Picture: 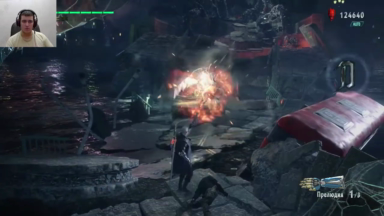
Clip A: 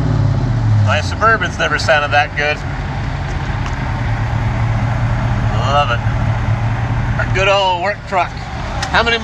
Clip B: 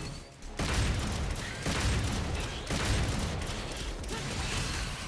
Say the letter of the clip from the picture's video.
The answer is B